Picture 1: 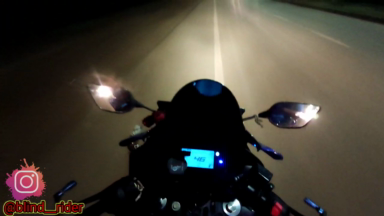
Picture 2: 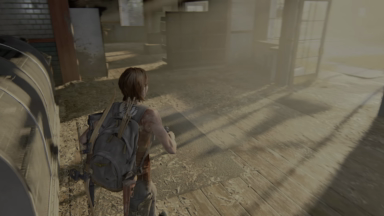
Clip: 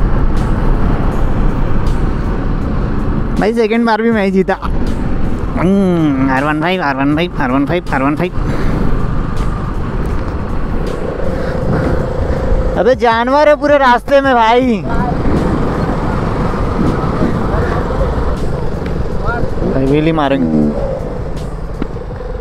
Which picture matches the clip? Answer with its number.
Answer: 1